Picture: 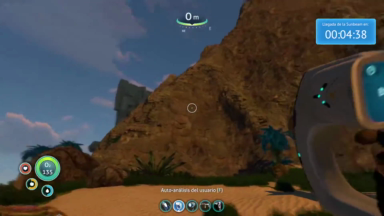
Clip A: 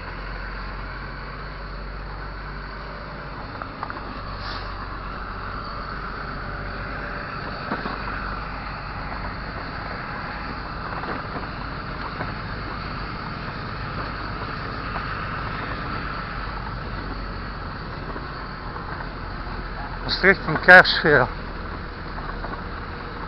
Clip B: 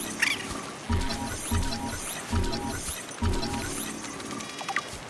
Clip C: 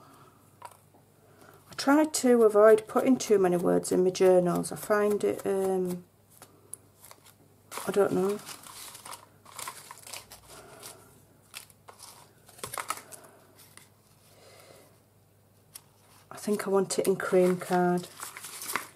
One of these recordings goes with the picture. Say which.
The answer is B